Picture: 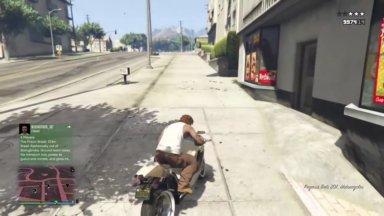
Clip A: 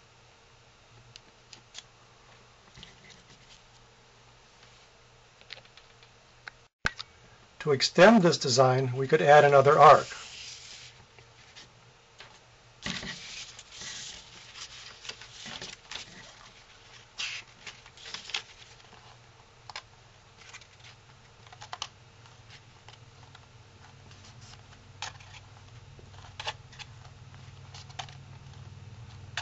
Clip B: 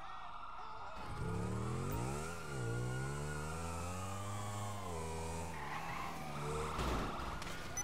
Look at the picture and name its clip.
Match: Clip B